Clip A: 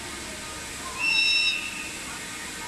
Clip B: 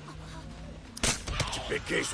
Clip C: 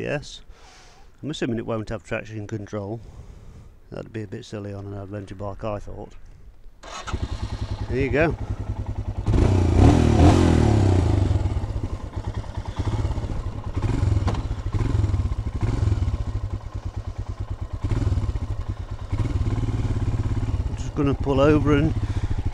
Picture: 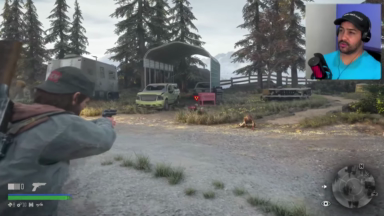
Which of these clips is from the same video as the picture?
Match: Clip B